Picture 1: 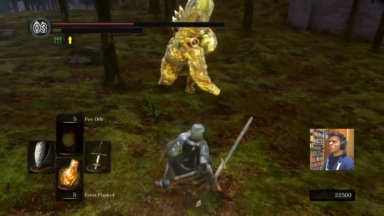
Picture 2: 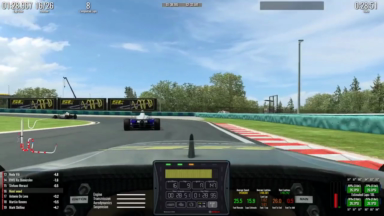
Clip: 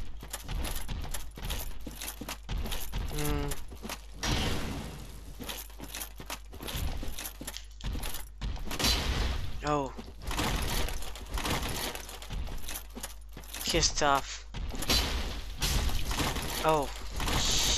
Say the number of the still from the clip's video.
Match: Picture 1